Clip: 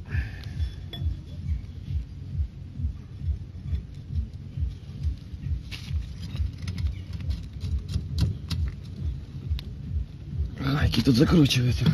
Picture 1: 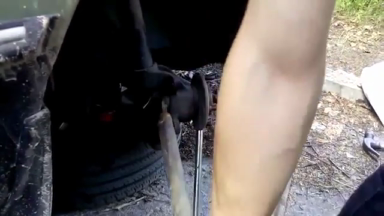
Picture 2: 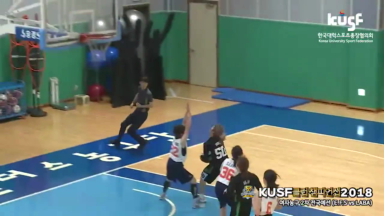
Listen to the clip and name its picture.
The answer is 1